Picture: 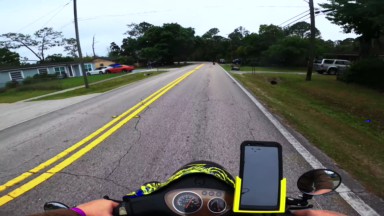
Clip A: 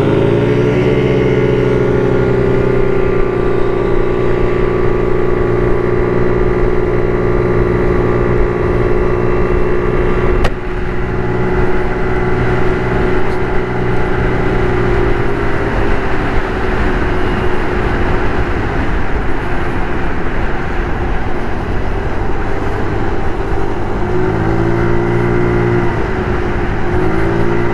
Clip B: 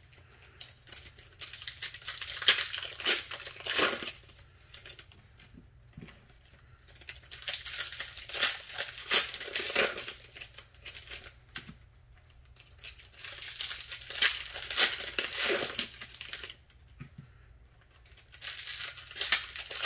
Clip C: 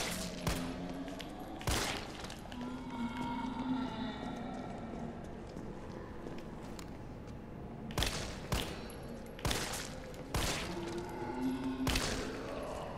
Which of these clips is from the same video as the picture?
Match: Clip A